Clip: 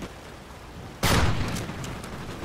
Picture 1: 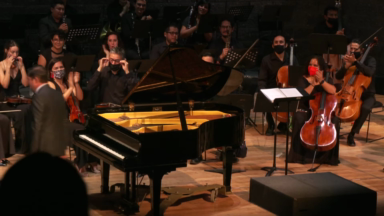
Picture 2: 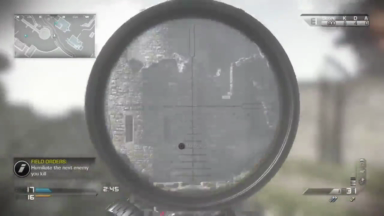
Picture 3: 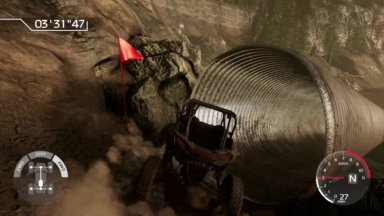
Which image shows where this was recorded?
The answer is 2